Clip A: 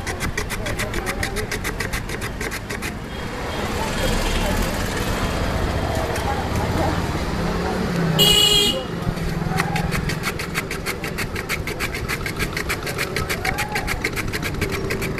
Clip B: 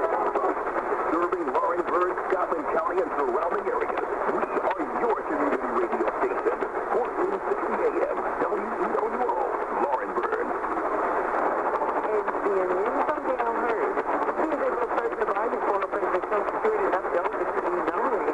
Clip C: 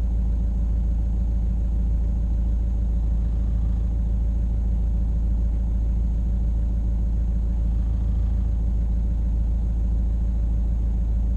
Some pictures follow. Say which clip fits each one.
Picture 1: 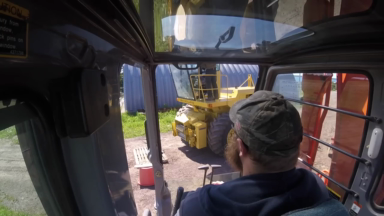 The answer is C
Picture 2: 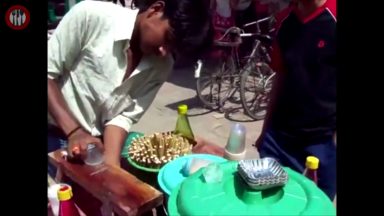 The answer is A